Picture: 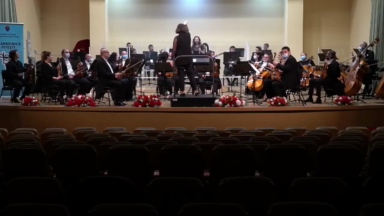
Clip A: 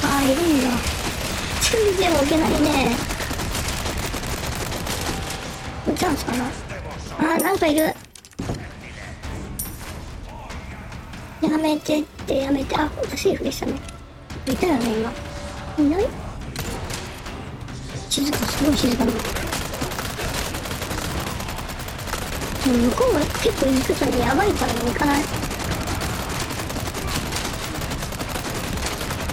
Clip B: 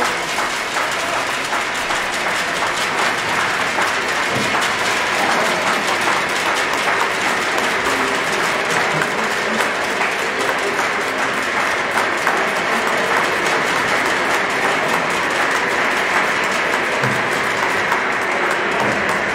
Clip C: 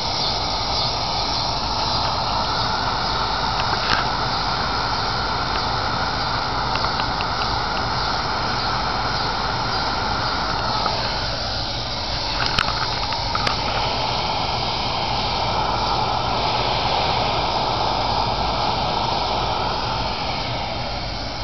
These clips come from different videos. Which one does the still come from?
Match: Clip B